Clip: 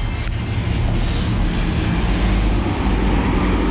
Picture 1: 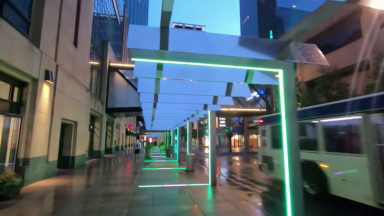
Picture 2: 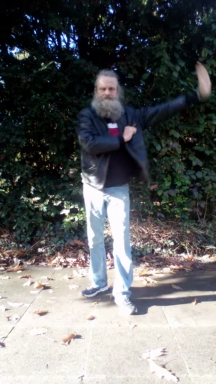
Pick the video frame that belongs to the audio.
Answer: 1